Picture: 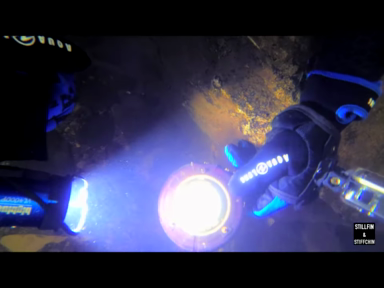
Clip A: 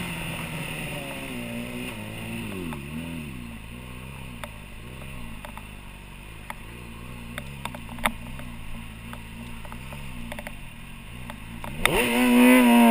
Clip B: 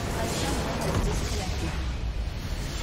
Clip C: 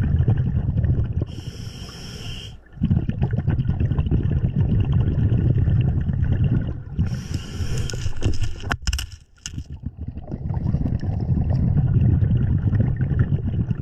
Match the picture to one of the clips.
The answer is C